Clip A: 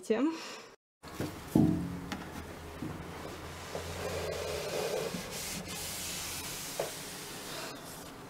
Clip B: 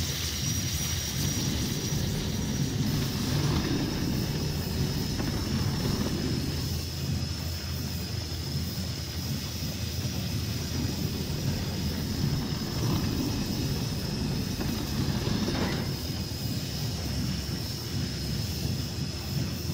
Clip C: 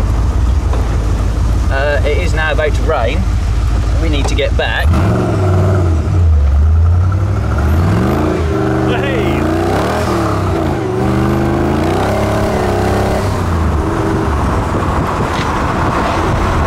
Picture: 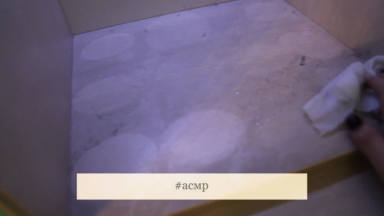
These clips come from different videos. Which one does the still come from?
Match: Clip A